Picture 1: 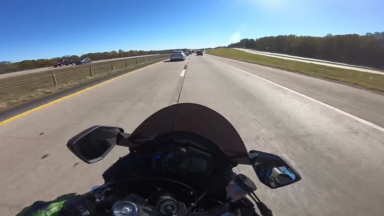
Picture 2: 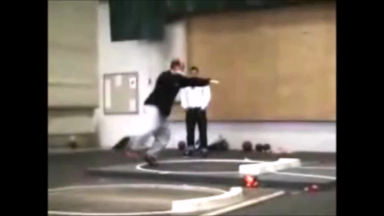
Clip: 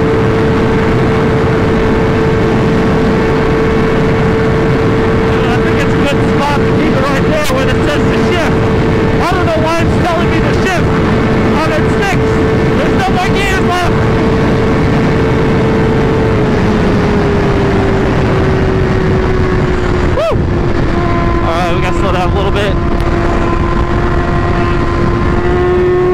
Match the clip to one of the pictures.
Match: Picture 1